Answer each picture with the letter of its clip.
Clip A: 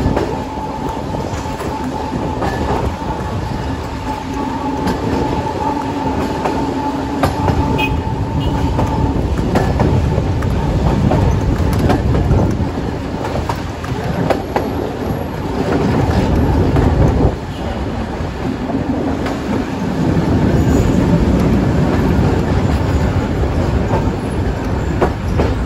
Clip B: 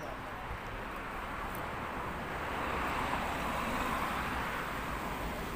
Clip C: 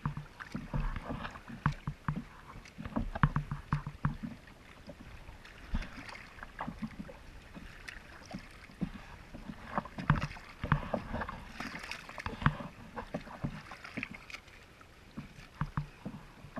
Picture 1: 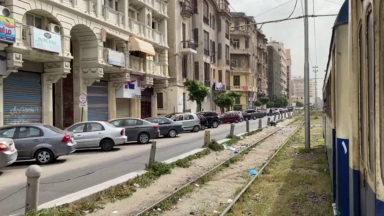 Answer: A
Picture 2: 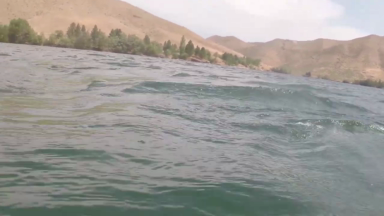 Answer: C